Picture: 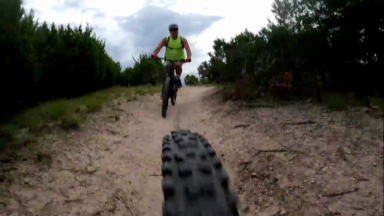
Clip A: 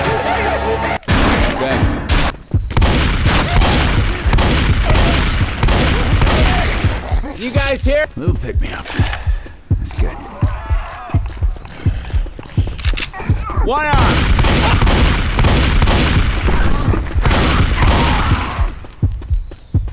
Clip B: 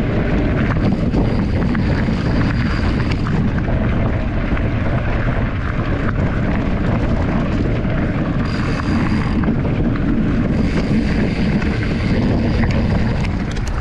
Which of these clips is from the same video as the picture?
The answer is B